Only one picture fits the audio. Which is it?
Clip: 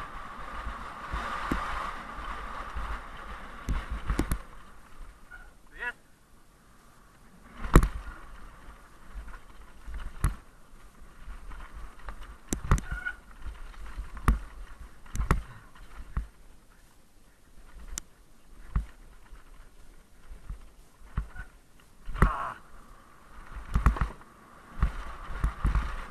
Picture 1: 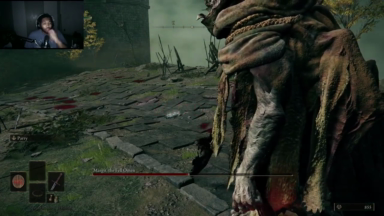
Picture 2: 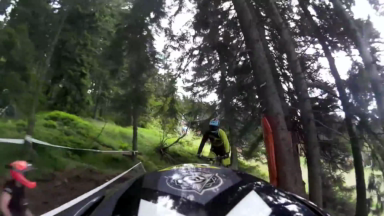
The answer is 2